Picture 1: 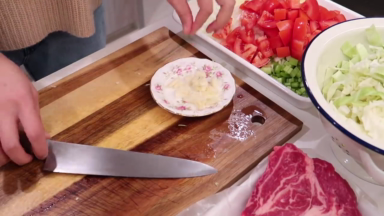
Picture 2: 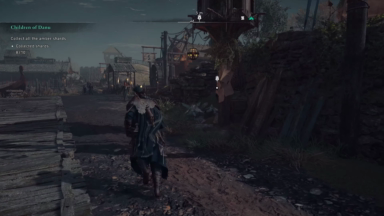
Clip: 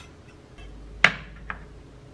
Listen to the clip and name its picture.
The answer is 1